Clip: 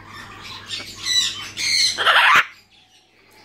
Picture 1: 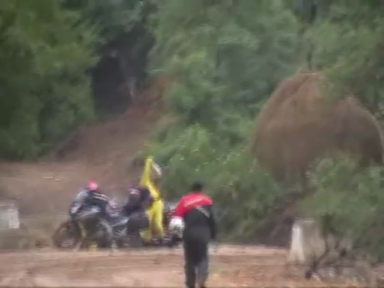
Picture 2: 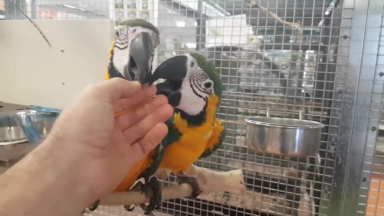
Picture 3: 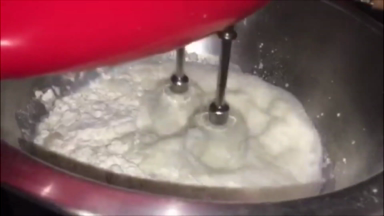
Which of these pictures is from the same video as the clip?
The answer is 2